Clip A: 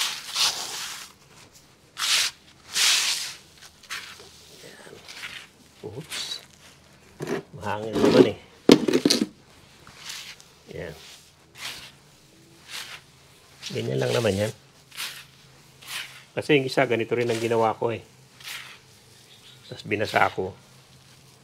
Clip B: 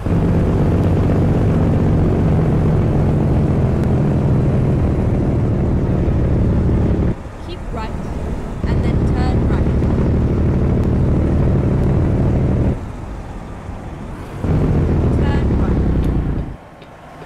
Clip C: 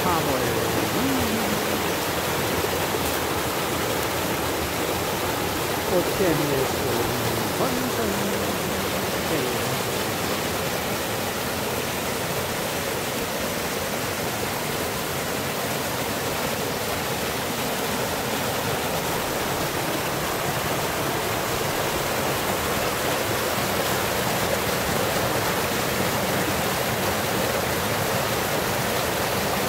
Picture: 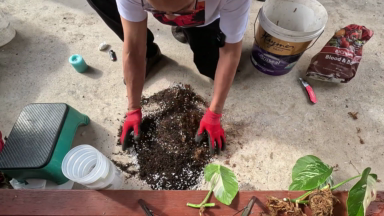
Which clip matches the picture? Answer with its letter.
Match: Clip A